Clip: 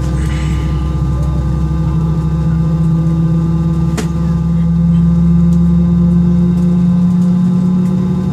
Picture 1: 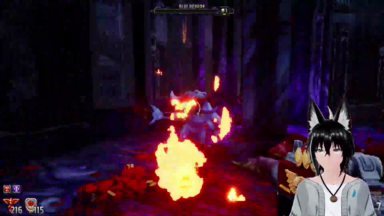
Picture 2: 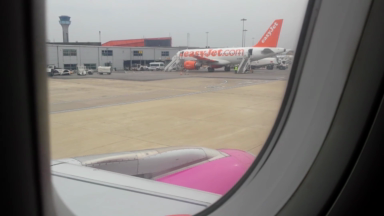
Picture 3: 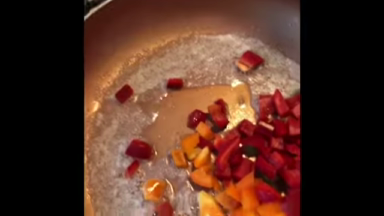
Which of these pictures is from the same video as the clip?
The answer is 2